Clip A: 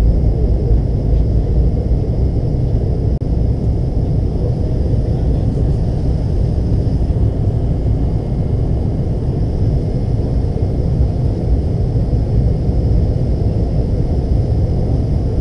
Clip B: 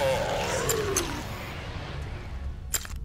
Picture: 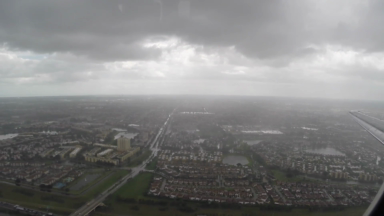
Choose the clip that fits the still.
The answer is A